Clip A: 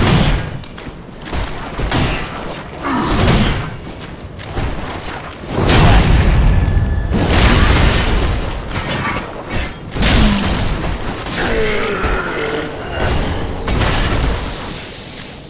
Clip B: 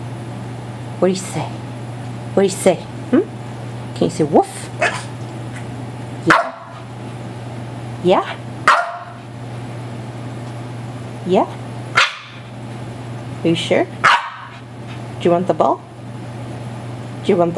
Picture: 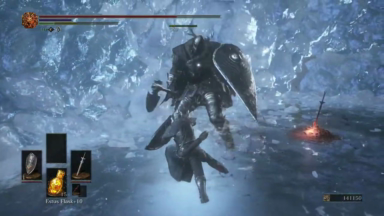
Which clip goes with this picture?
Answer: A